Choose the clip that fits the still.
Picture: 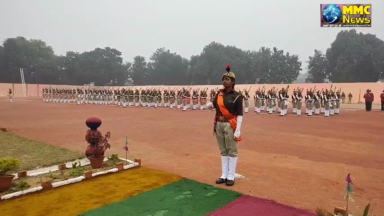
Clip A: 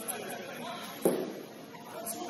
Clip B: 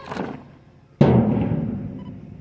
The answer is B